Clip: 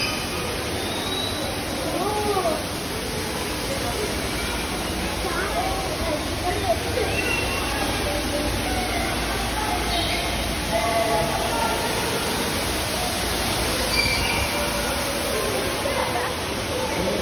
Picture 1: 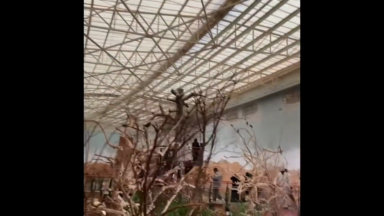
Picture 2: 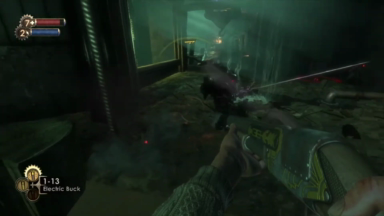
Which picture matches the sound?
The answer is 1